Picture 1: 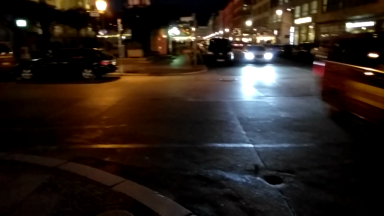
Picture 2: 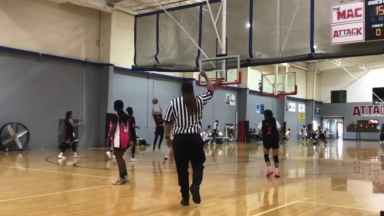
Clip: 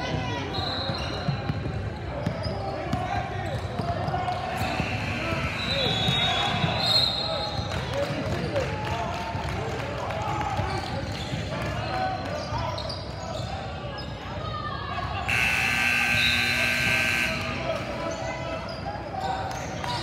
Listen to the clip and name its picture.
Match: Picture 2